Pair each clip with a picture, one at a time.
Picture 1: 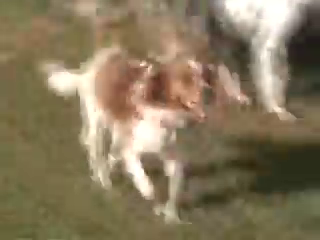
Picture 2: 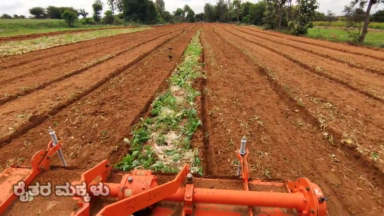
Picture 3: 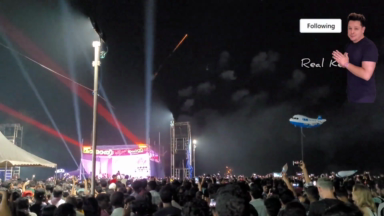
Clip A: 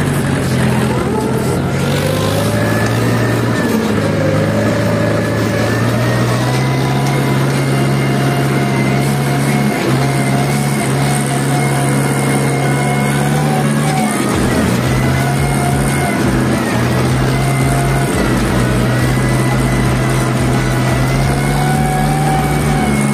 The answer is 2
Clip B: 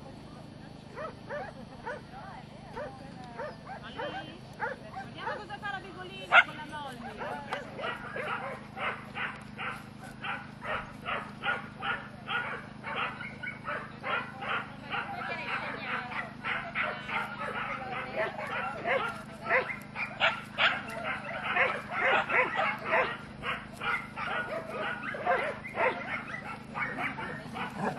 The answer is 1